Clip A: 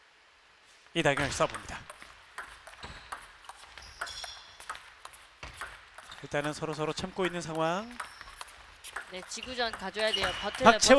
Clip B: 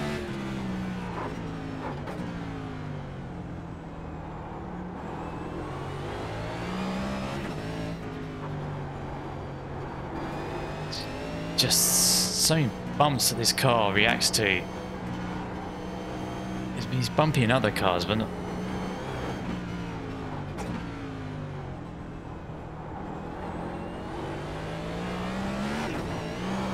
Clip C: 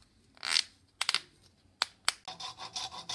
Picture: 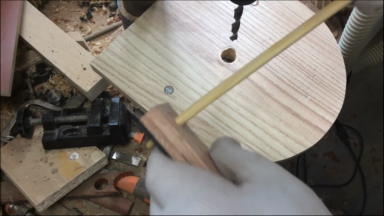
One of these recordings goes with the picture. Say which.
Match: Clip C